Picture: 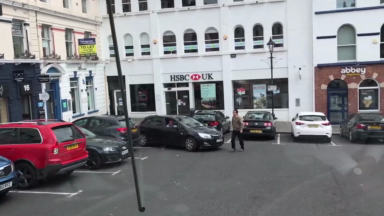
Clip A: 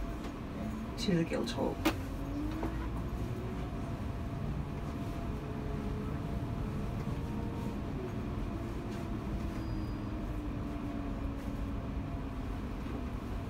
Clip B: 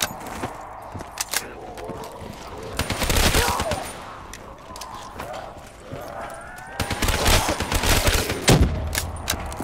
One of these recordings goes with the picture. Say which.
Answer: A